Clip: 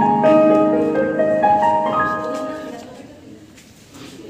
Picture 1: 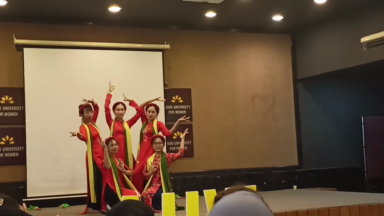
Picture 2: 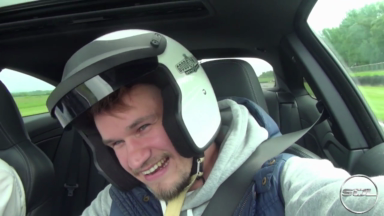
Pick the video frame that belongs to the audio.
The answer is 1